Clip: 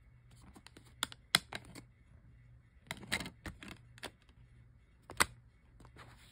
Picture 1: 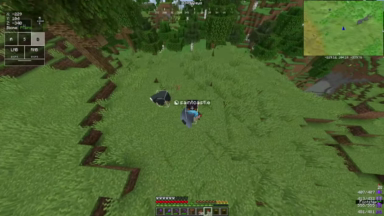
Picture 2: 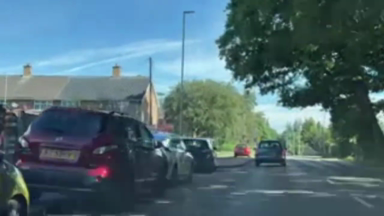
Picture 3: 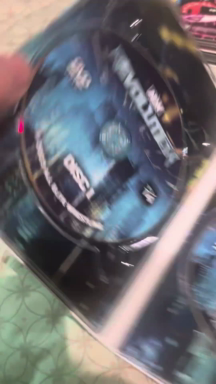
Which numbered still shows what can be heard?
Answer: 3